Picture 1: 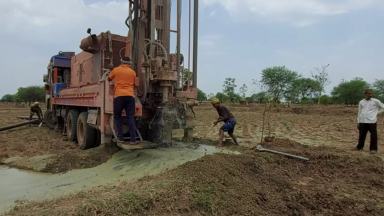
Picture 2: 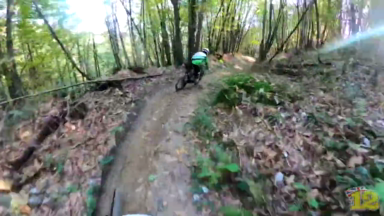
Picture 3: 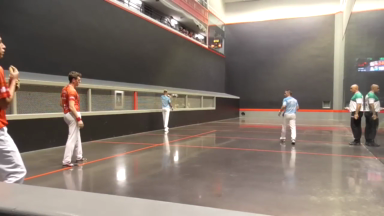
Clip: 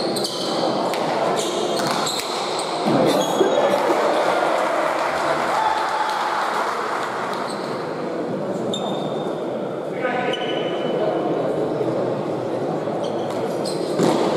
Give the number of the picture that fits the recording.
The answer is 3